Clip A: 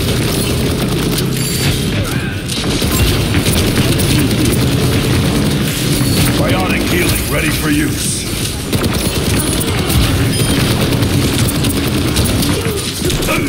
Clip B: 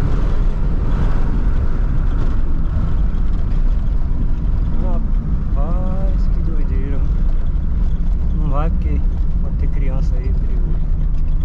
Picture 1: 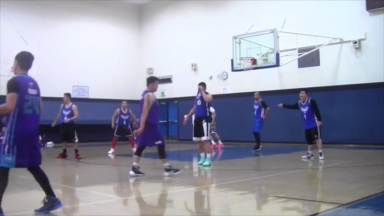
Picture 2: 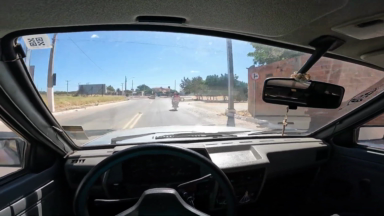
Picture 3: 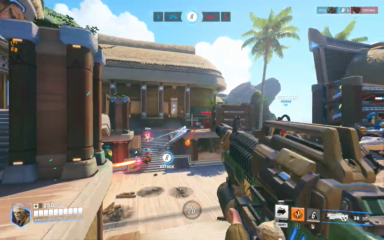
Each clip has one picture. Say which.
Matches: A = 3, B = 2